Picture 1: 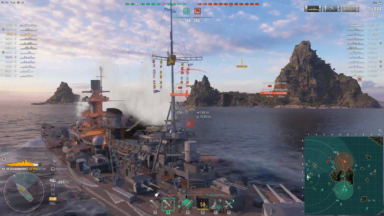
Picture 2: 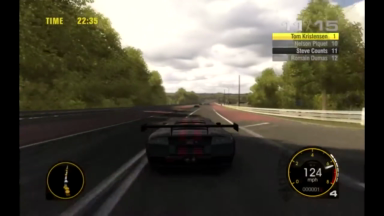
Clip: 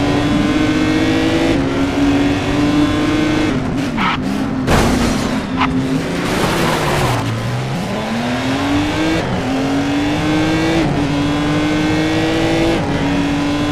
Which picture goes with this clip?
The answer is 2